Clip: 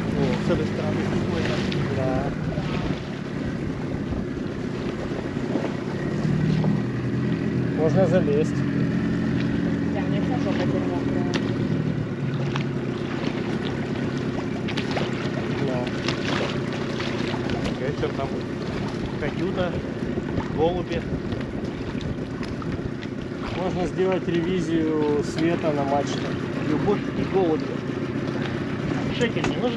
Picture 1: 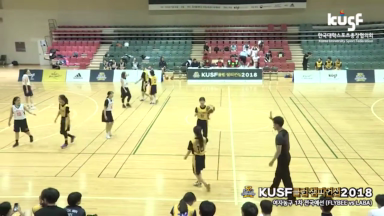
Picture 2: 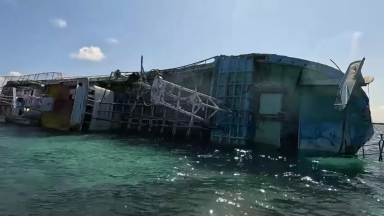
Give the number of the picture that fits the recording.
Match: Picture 2